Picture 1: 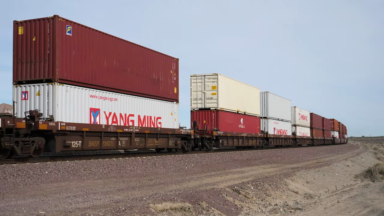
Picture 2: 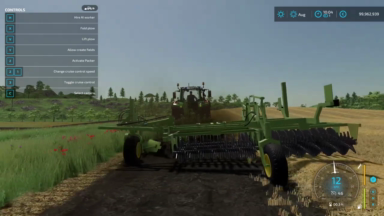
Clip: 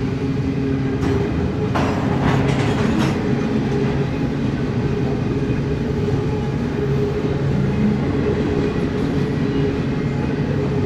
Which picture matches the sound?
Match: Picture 1